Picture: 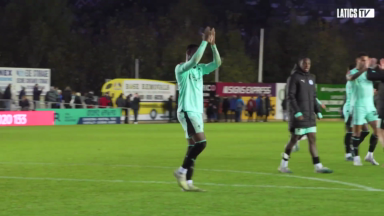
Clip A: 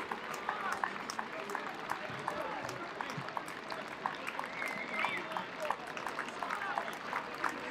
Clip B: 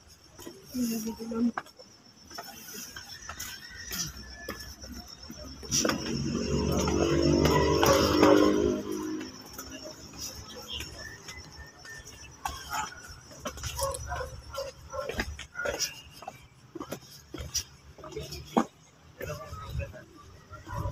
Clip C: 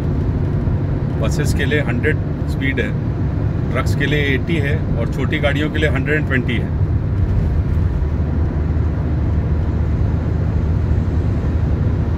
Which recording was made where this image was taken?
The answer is A